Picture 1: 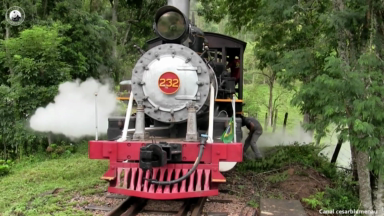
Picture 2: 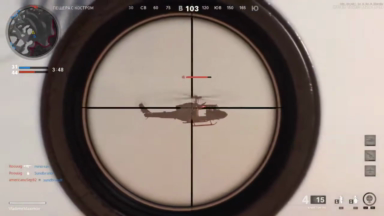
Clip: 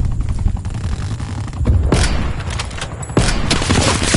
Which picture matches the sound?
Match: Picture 2